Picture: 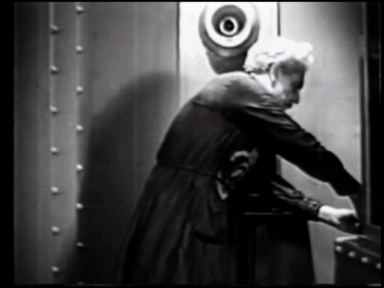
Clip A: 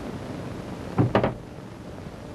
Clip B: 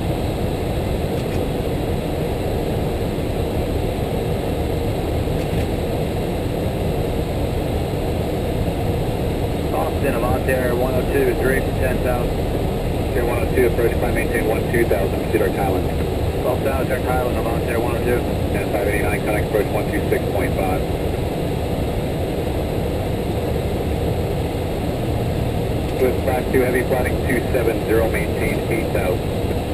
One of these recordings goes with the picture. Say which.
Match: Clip A